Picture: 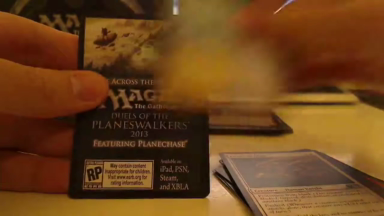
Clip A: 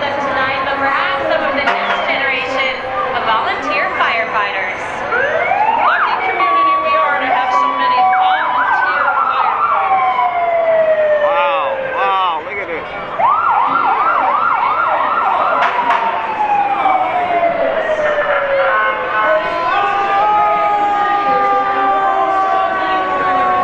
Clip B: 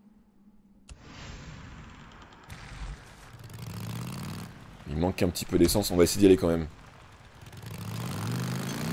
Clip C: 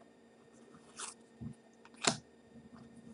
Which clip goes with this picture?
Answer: C